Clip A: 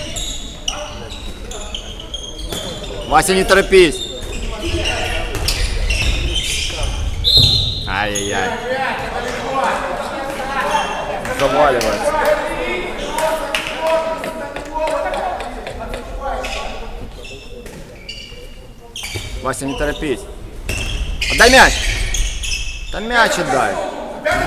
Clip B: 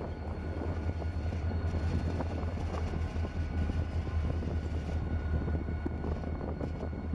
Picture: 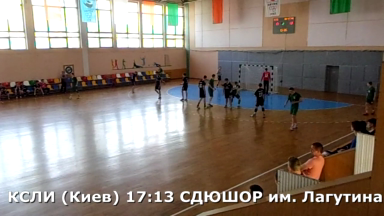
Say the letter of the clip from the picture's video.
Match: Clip A